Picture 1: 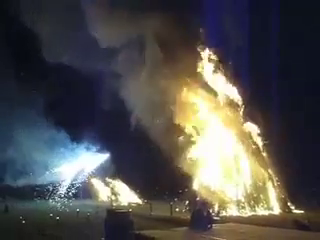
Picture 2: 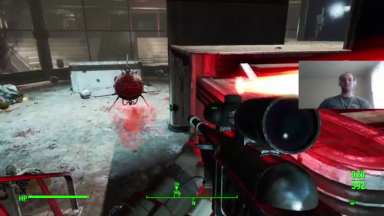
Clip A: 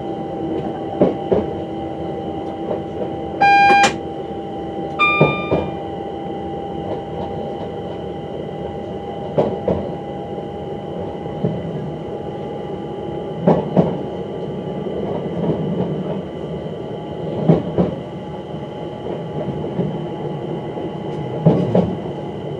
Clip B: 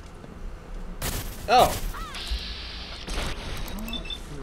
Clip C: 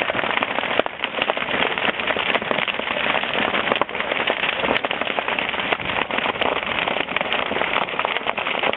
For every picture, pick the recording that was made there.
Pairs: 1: C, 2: B